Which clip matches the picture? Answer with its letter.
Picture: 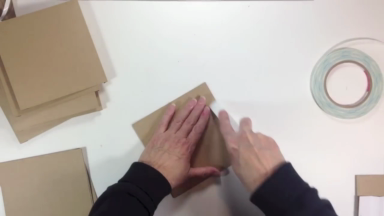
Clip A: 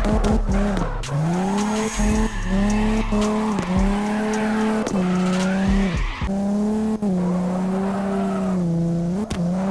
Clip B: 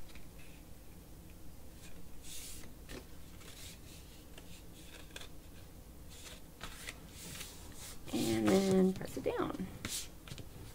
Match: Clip B